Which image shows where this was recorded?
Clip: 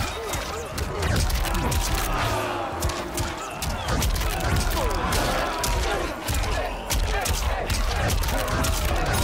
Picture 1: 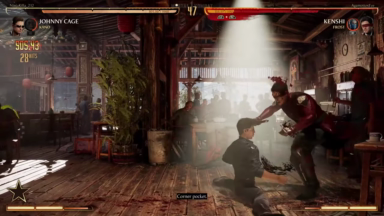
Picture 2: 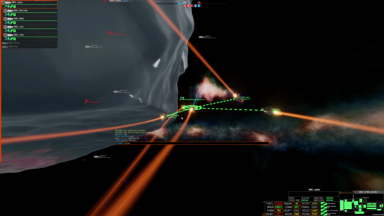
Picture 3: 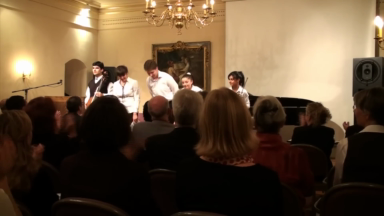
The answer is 1